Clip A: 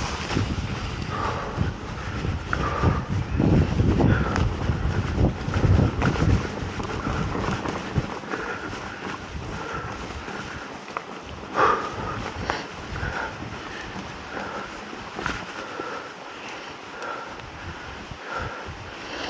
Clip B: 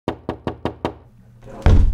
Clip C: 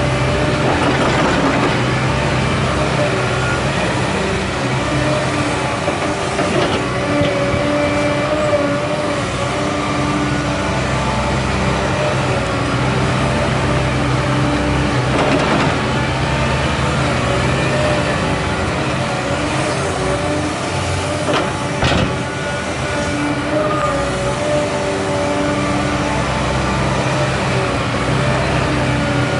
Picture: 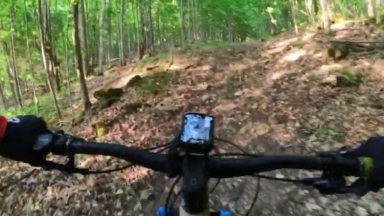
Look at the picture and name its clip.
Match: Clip A